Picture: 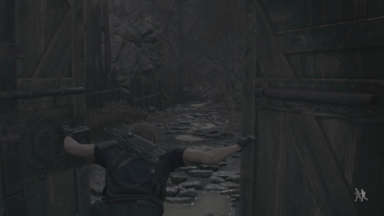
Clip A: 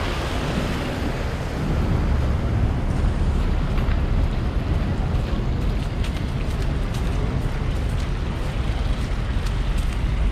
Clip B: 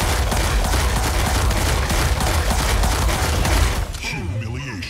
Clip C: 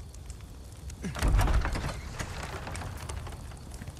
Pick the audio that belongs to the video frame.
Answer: C